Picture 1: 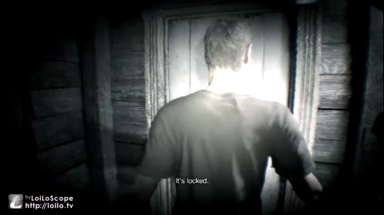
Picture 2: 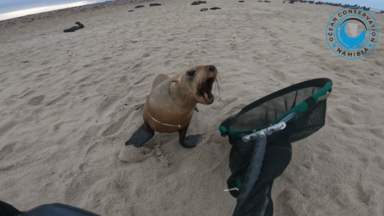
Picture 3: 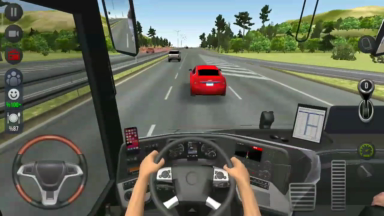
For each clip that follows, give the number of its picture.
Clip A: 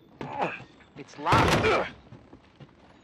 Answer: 1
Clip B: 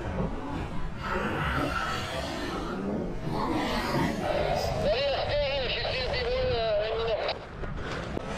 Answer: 2